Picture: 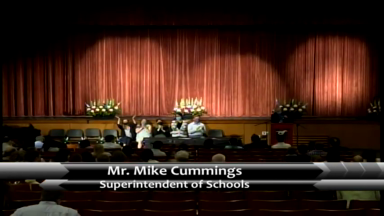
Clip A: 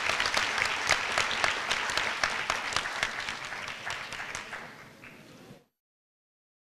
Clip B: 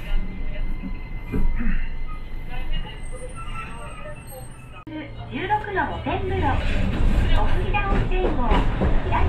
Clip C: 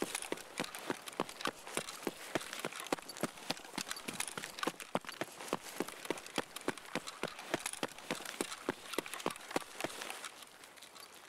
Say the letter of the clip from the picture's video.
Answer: A